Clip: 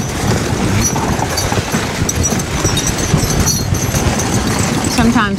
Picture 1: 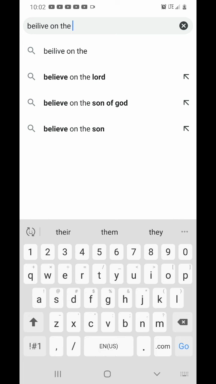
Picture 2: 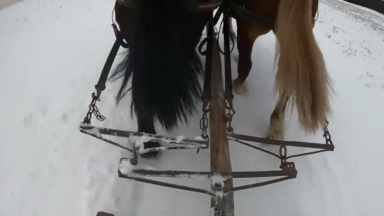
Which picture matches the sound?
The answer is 2